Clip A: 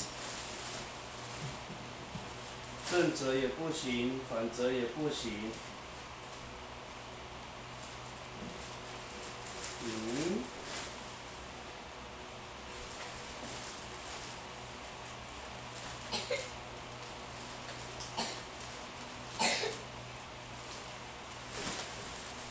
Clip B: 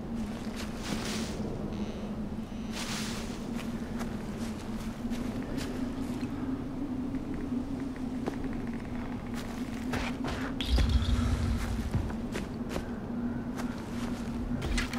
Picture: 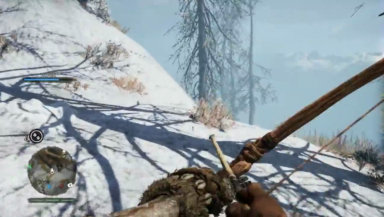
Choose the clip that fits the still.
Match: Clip B